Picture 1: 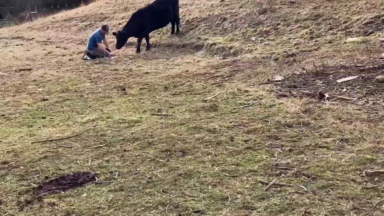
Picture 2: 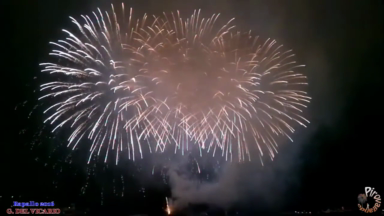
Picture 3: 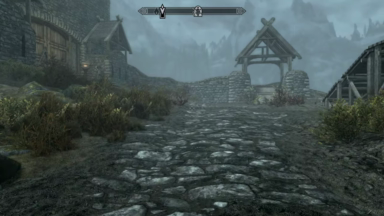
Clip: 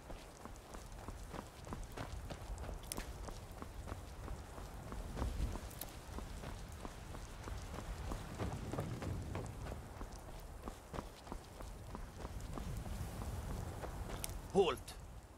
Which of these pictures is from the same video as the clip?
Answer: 3